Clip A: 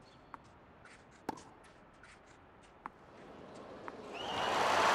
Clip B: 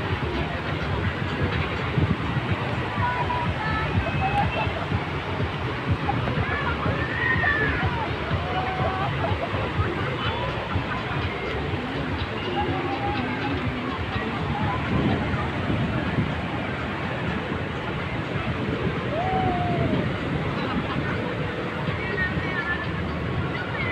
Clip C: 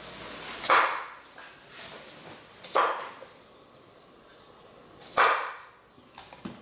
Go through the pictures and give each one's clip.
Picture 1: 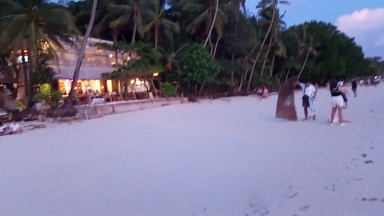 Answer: B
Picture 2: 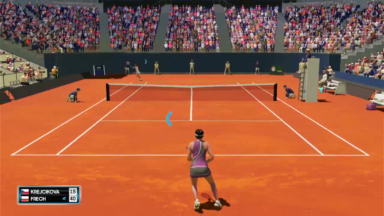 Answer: A